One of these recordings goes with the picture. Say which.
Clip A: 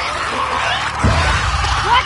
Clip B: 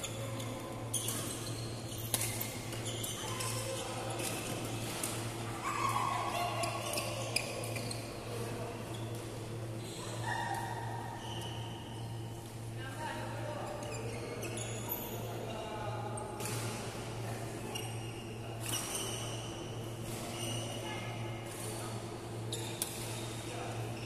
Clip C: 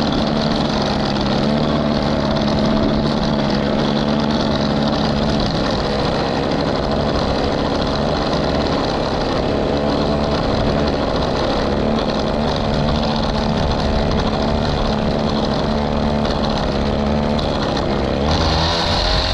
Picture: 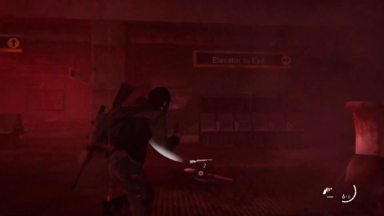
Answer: A